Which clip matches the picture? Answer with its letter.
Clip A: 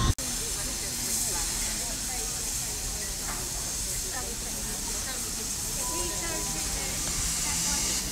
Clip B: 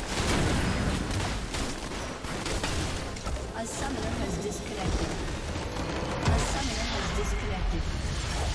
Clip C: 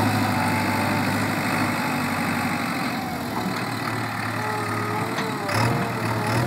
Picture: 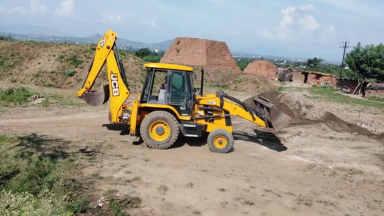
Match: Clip C